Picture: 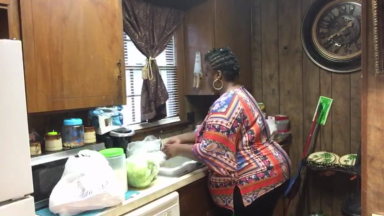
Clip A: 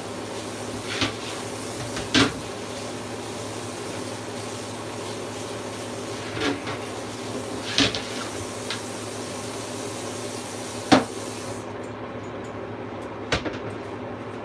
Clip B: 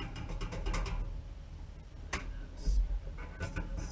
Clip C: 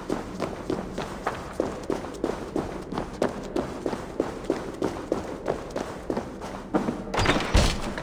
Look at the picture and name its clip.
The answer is A